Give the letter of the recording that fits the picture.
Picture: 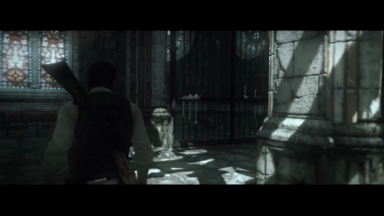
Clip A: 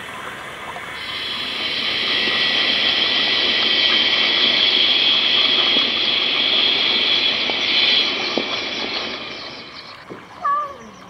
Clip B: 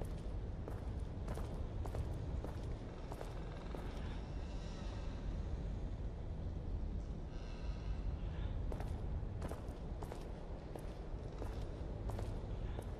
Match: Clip B